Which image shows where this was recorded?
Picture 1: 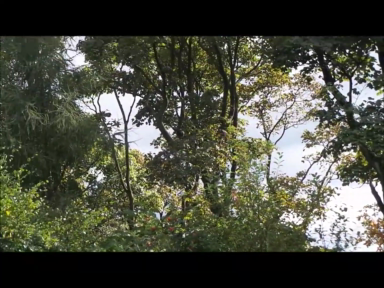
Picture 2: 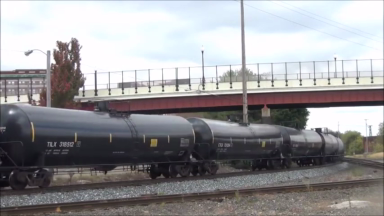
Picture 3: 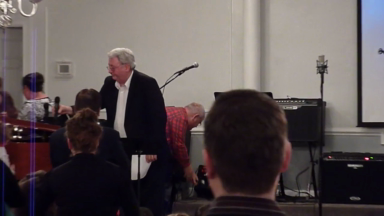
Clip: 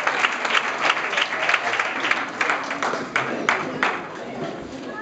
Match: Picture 3